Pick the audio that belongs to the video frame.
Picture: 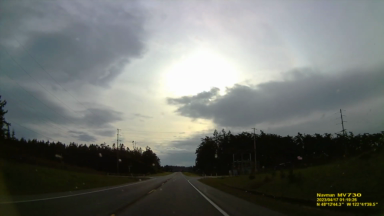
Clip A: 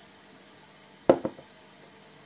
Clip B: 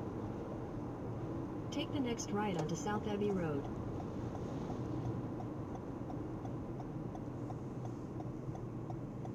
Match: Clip B